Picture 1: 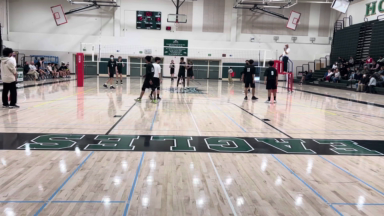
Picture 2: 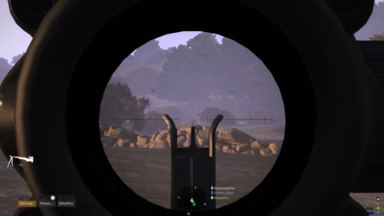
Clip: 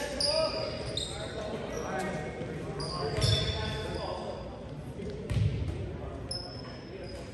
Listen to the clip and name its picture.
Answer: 1